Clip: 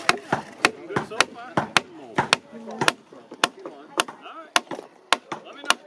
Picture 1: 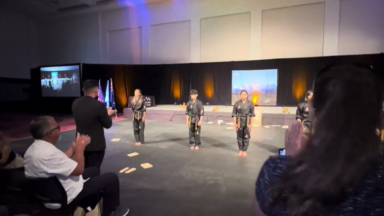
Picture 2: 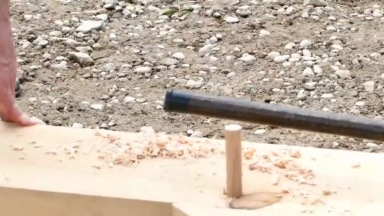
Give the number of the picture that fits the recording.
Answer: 2